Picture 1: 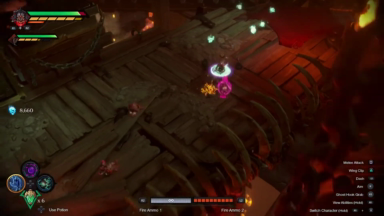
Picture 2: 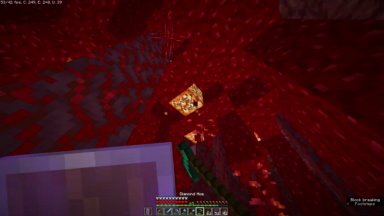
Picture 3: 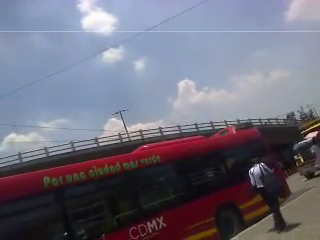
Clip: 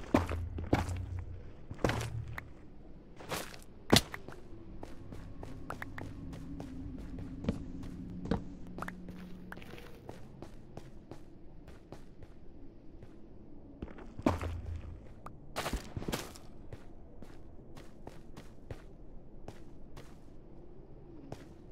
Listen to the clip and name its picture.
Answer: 2